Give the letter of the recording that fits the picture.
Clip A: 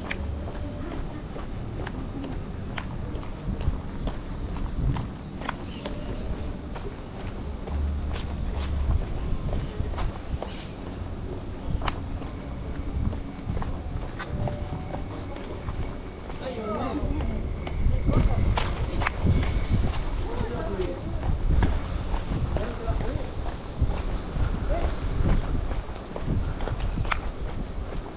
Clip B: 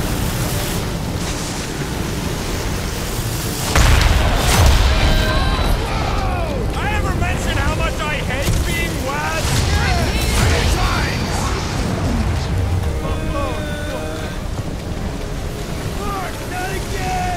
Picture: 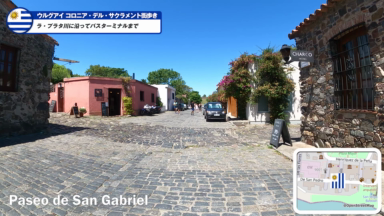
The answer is A